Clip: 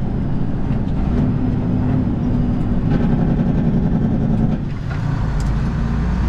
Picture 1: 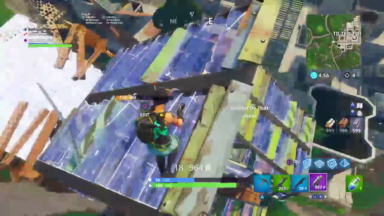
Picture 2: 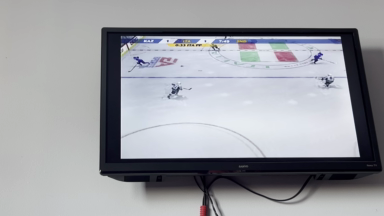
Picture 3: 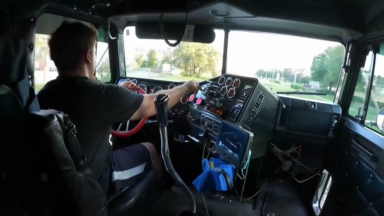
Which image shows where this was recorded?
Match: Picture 3